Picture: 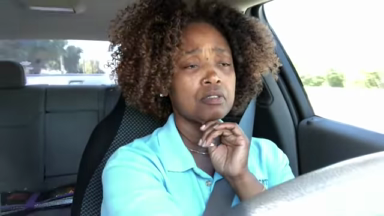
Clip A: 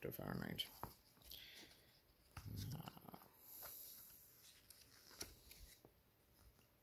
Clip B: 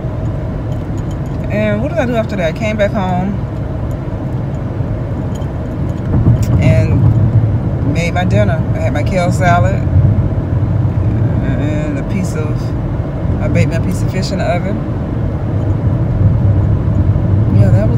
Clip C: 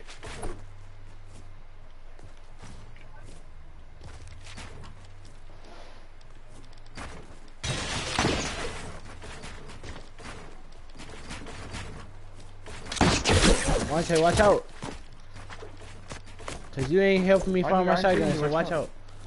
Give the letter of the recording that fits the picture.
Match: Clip B